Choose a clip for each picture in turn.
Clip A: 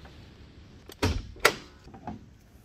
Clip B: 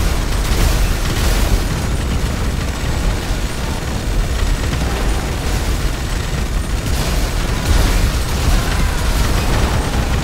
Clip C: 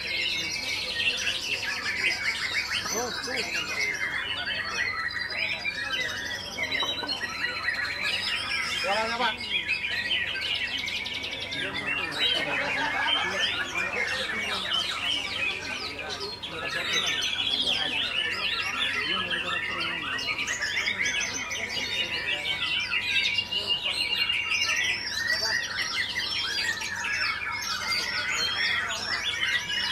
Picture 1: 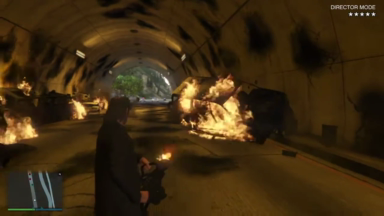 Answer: B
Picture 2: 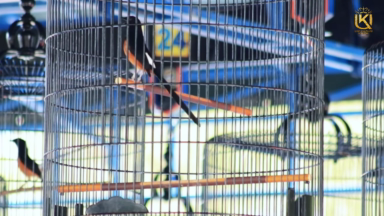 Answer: C